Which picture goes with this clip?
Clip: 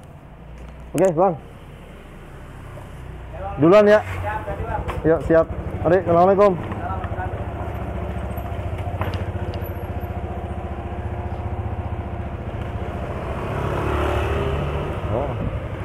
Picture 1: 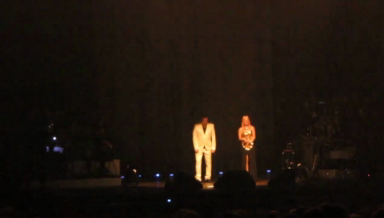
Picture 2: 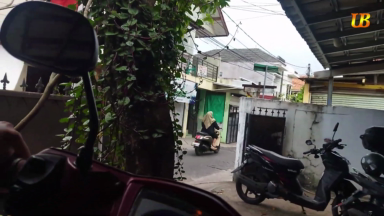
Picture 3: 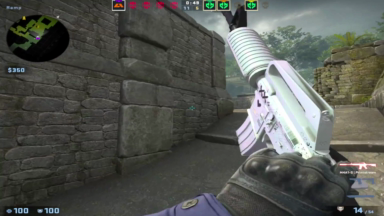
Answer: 2